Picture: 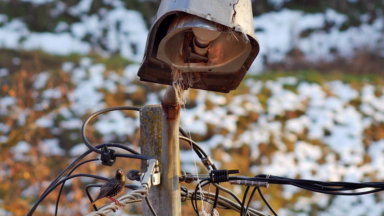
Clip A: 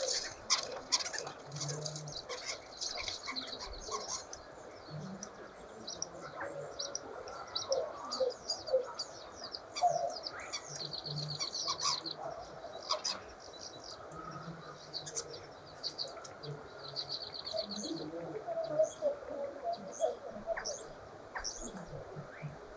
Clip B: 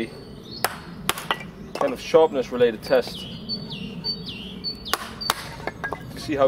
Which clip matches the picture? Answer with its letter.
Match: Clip A